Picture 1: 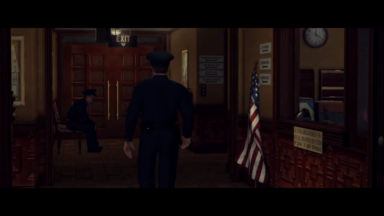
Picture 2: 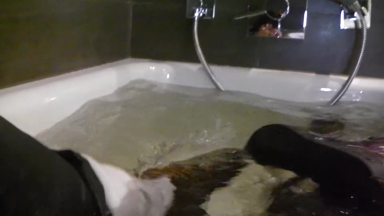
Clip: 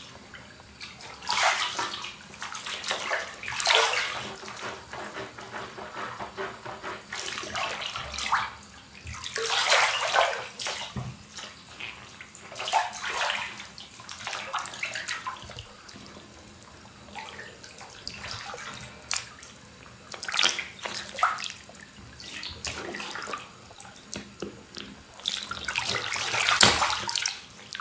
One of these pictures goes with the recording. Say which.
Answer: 2